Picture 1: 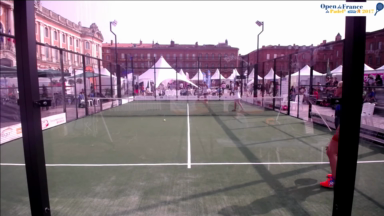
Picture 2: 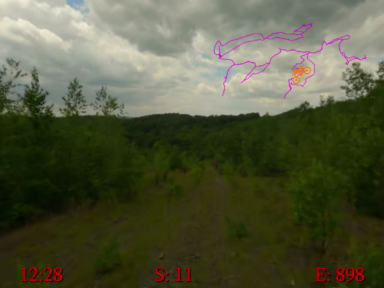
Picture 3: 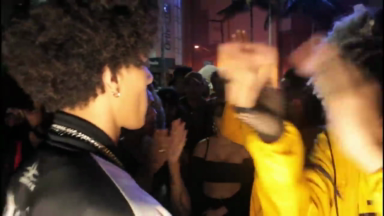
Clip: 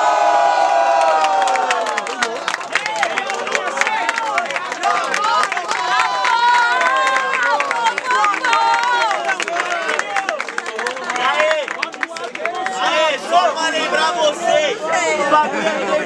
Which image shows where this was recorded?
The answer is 3